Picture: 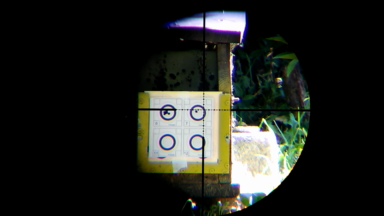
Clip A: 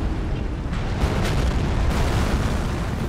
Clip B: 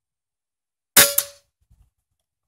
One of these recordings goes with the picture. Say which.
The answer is B